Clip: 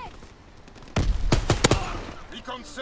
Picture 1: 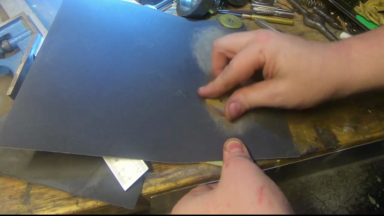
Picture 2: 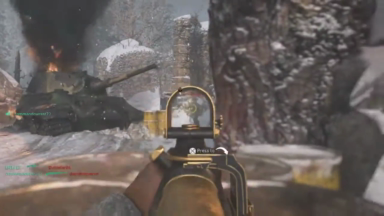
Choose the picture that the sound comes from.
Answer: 2